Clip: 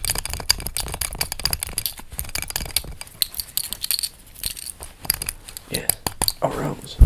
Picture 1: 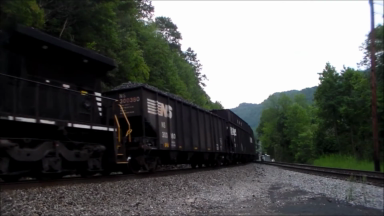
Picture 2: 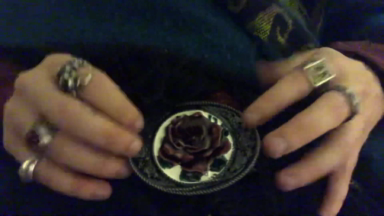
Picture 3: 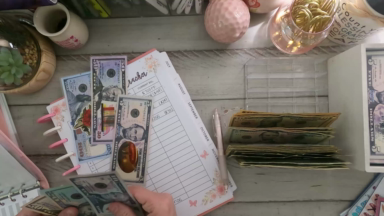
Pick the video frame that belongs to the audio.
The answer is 2